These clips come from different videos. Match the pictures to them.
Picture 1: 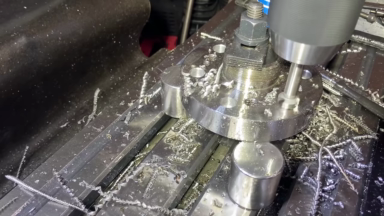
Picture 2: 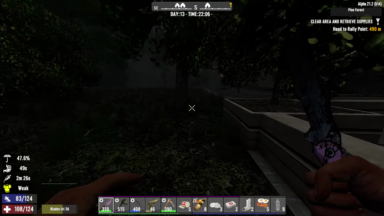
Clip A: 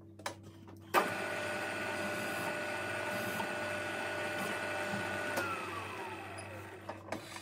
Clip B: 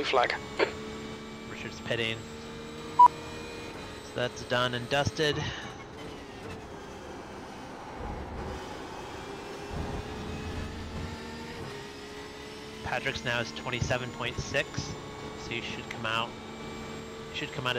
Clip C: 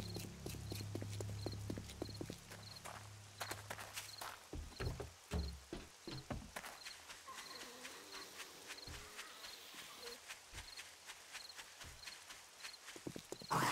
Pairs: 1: A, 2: C